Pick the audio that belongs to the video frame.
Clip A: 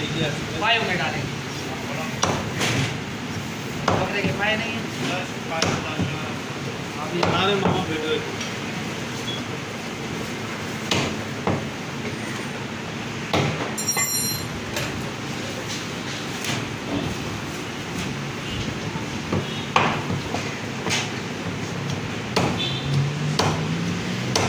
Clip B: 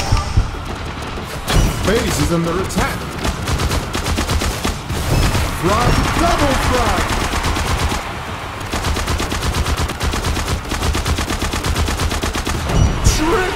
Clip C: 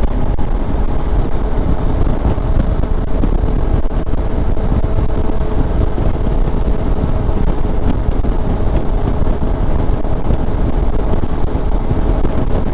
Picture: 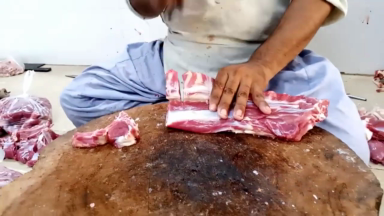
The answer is A